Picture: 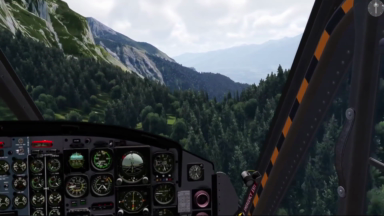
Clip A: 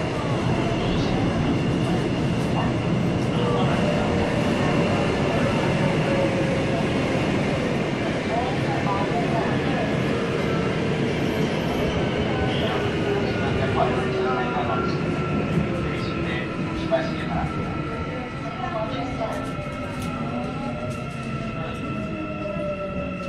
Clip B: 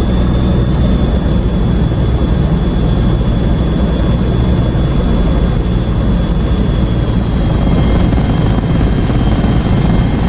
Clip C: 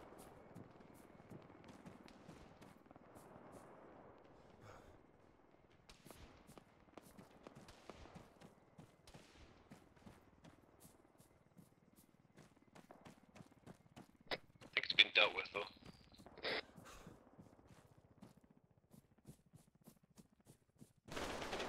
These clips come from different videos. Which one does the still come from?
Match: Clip B